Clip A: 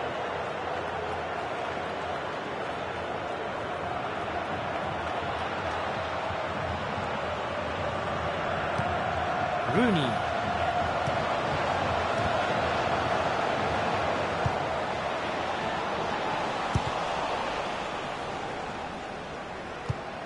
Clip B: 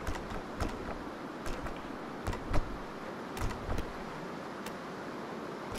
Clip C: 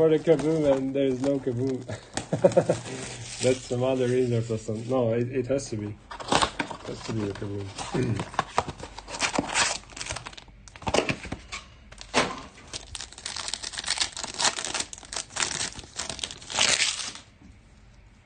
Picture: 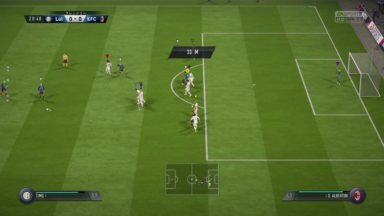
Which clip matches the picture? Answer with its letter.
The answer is A